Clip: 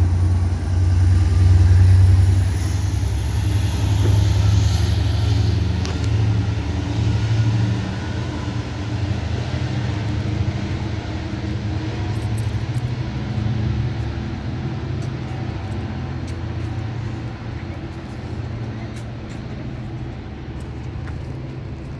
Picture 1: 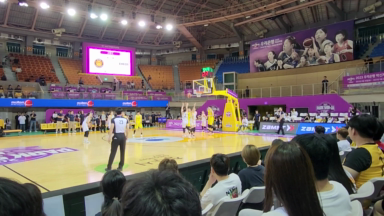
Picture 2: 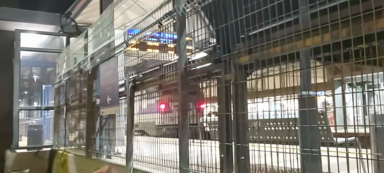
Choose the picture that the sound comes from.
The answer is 2